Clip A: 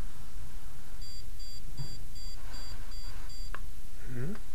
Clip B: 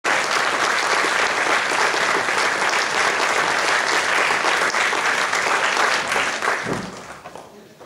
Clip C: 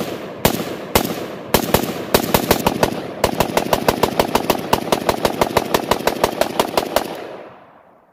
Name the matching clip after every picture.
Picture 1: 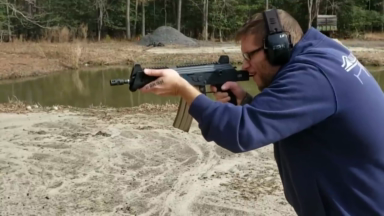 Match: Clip C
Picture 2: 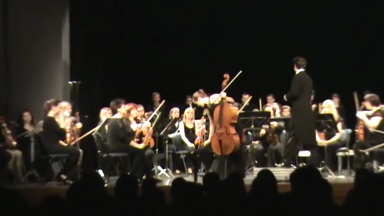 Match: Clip B